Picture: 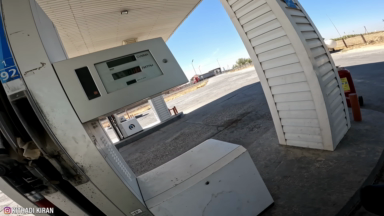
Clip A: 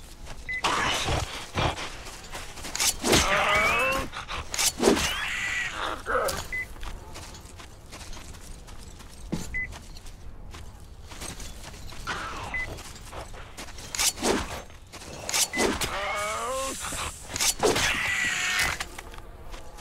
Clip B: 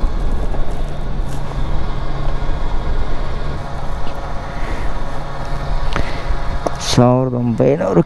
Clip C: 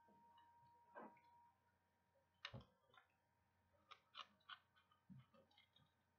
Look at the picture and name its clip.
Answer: B